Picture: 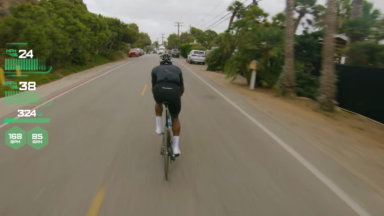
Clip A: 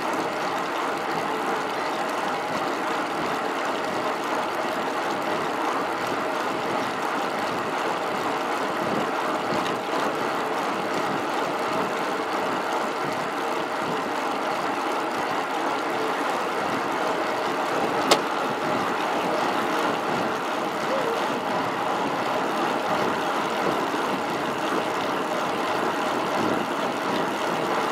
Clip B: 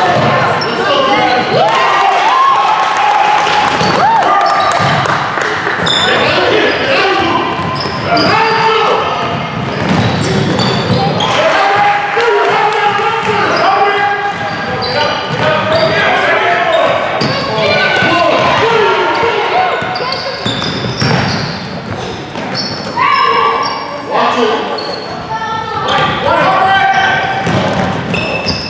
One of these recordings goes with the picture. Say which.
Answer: A